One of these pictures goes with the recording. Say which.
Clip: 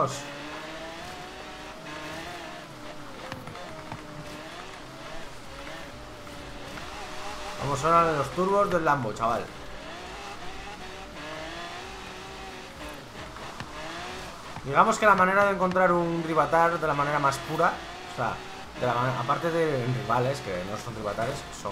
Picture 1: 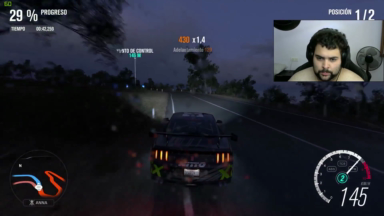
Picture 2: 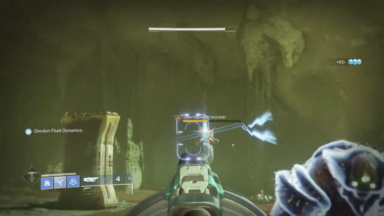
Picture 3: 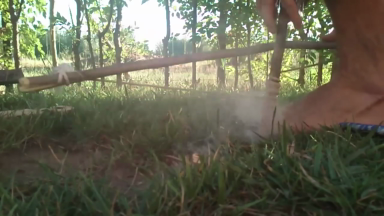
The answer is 1